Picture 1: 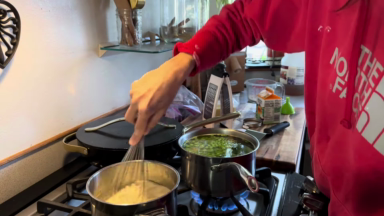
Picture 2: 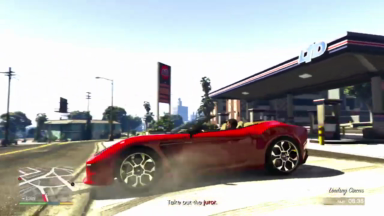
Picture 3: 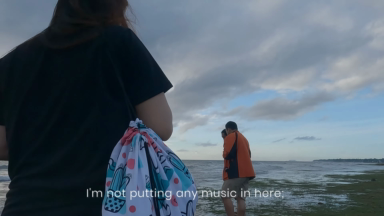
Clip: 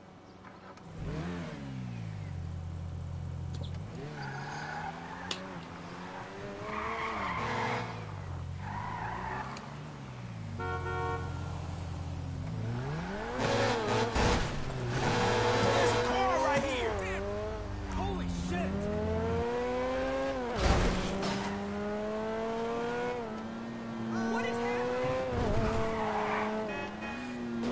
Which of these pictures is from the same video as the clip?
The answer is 2